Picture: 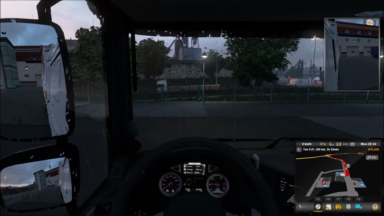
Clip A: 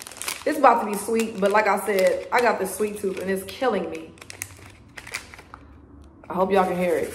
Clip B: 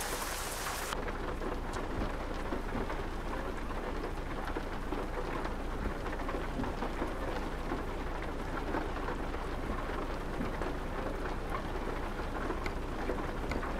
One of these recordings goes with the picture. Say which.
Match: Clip B